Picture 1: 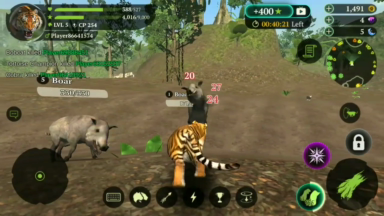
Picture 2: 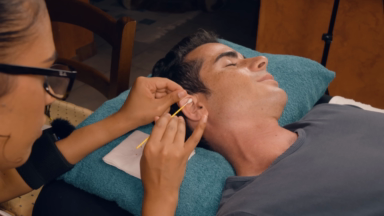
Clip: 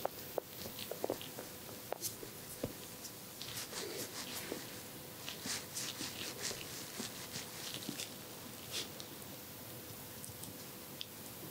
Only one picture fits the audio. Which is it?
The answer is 2